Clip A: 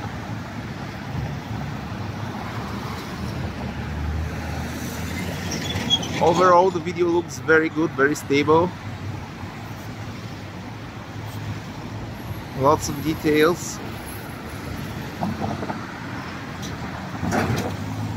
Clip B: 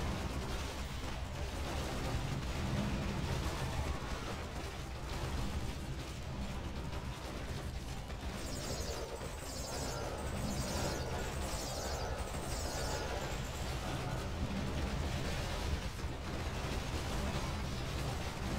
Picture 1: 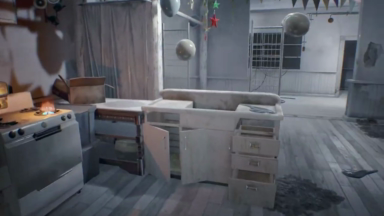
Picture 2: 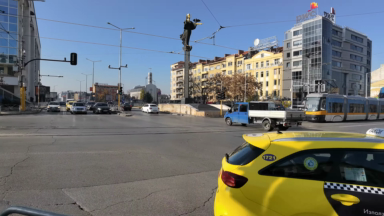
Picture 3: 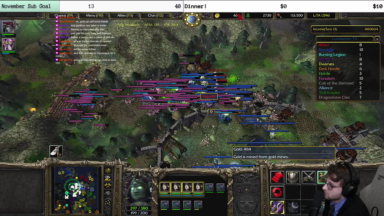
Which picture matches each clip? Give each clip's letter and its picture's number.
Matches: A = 2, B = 3